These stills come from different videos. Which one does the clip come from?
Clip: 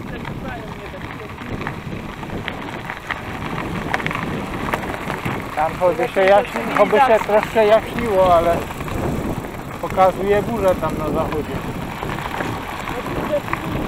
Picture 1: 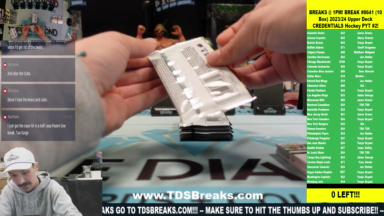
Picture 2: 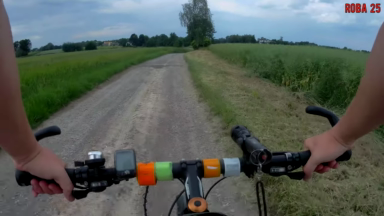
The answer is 2